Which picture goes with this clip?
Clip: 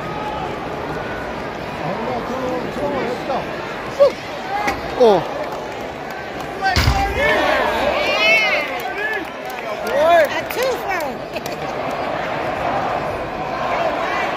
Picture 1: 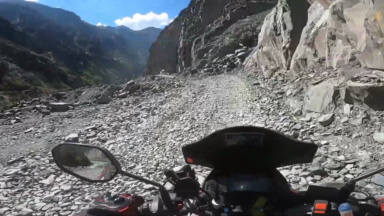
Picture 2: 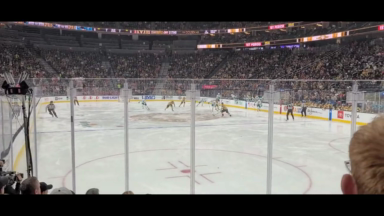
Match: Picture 2